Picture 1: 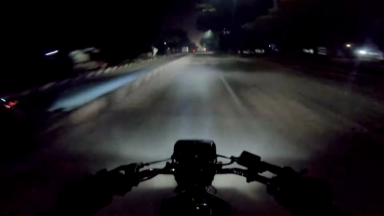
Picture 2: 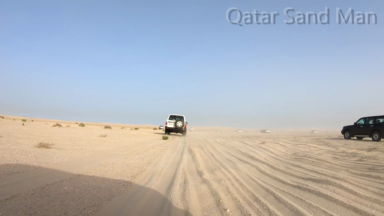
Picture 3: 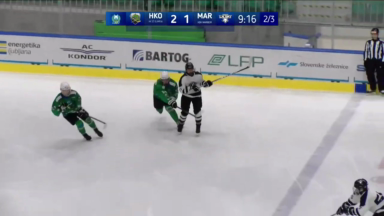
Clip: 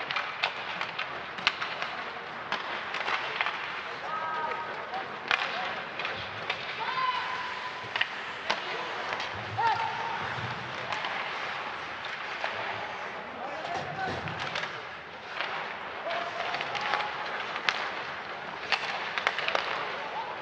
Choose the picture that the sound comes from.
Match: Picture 3